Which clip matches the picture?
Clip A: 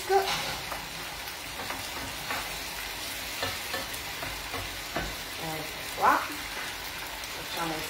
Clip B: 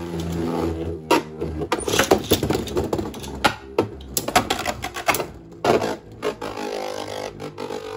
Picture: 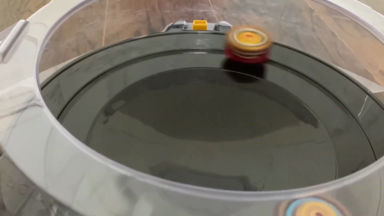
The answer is B